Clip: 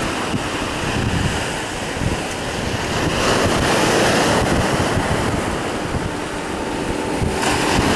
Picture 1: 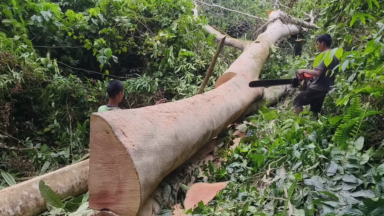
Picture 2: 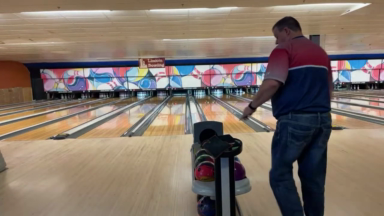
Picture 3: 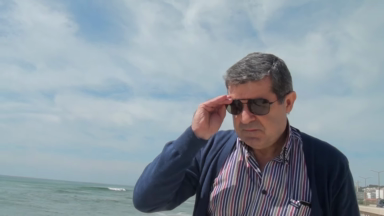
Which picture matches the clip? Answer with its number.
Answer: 3